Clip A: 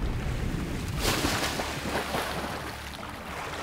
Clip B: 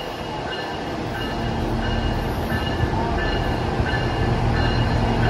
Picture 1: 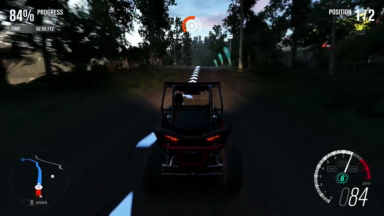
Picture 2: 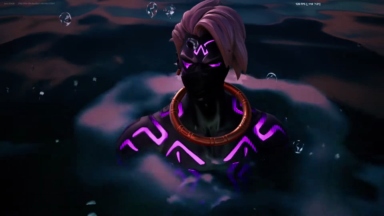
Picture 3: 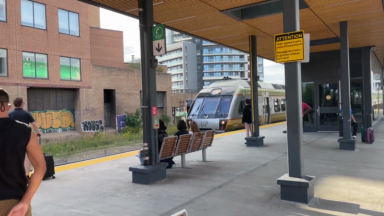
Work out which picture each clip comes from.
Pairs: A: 2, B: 3